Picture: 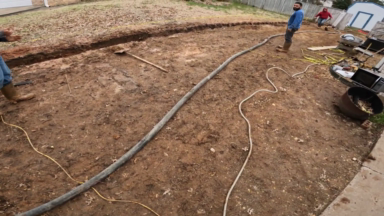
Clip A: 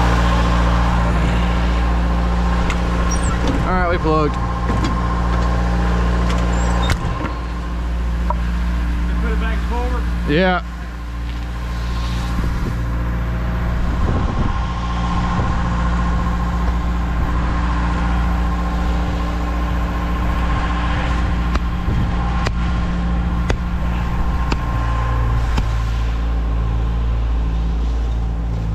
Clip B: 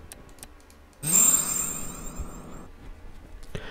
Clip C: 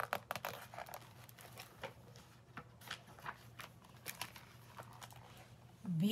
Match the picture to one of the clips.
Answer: A